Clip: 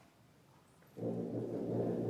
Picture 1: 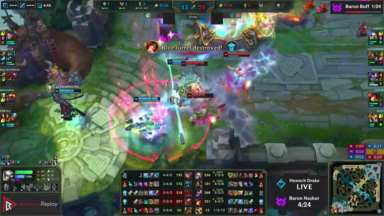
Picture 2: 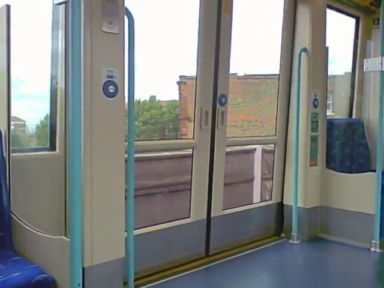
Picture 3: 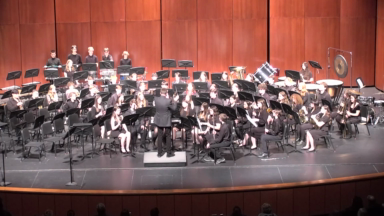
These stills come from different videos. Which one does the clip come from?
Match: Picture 3